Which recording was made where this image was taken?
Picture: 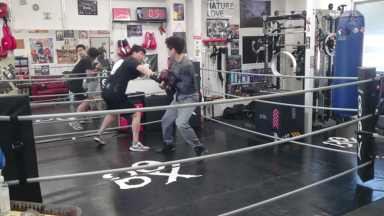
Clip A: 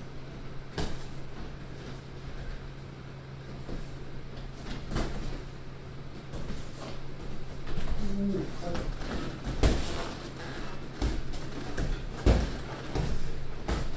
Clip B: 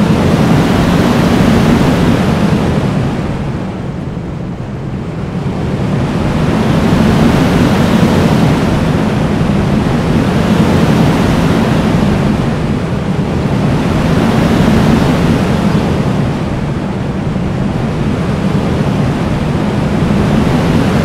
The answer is A